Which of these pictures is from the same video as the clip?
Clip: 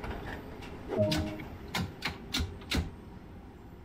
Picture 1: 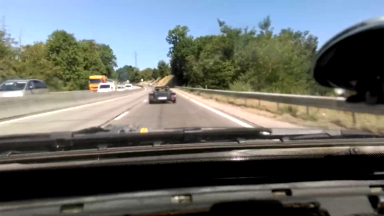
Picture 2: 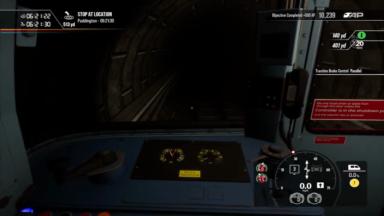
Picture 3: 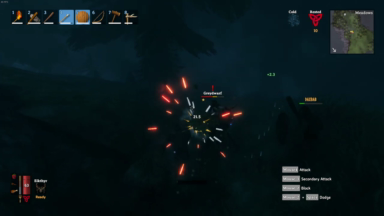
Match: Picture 2